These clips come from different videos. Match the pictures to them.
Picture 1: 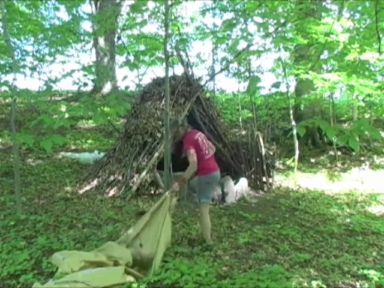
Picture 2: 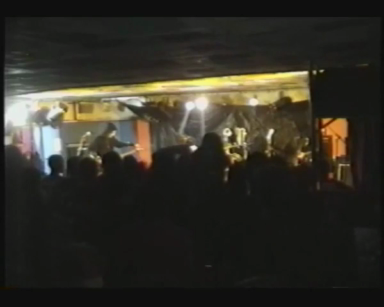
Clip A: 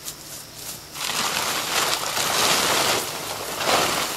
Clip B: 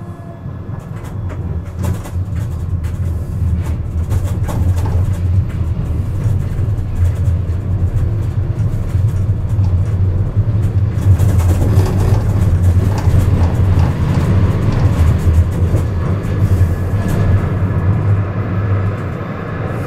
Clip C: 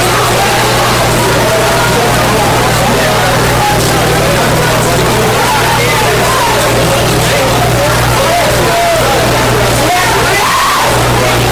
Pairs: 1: A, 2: C